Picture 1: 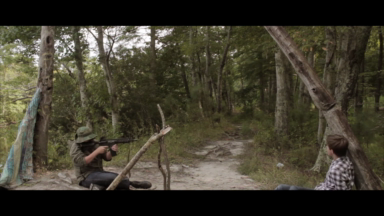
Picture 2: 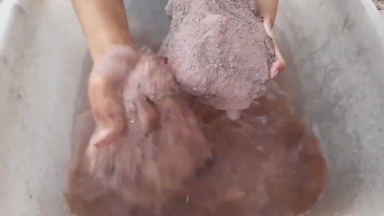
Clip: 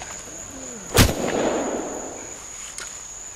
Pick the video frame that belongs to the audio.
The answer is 1